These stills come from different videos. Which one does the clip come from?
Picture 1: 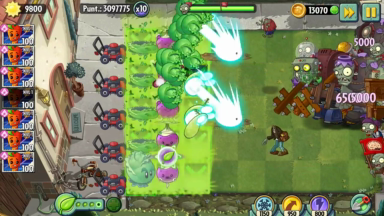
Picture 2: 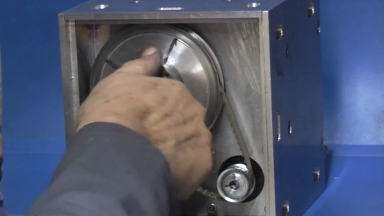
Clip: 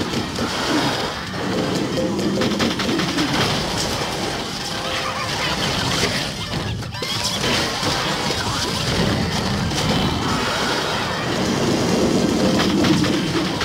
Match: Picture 1